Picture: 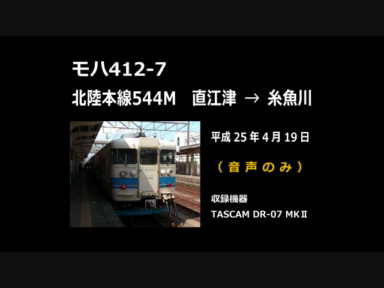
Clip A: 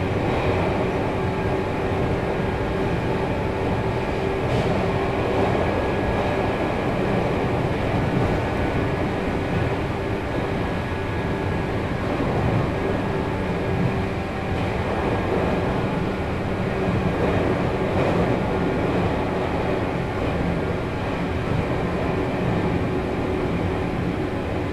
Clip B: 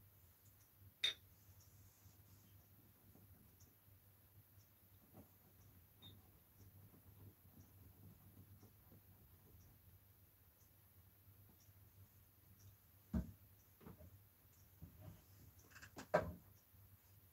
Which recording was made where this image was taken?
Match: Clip A